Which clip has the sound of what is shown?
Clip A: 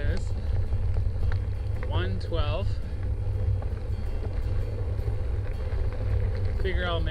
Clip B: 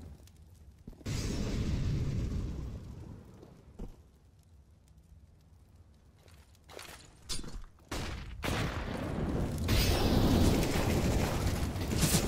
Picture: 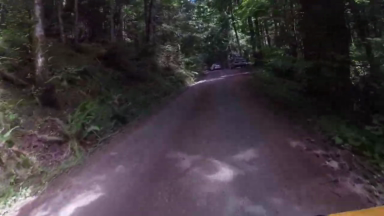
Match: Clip A